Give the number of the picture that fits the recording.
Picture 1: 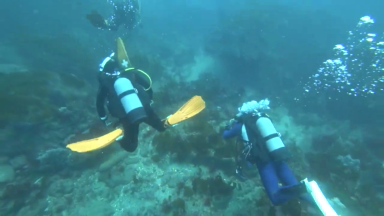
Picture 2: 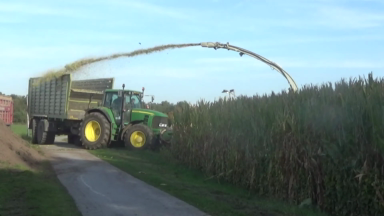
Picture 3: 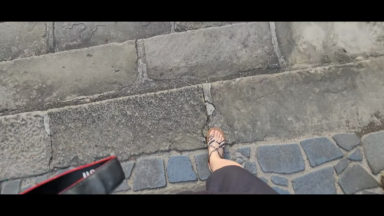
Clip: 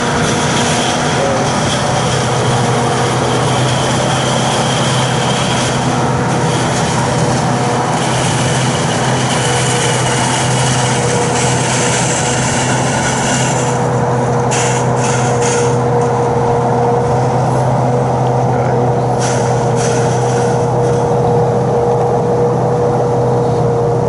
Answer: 2